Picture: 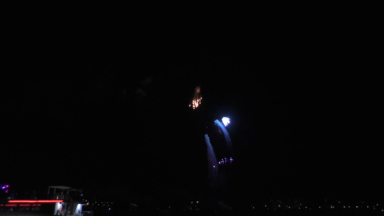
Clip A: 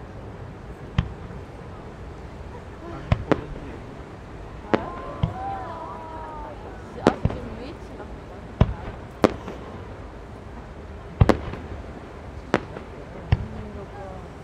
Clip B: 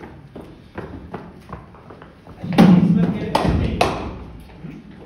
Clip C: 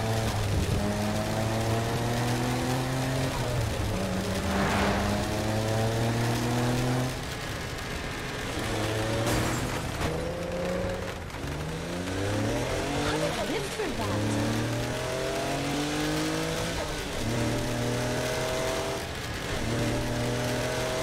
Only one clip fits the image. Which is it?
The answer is A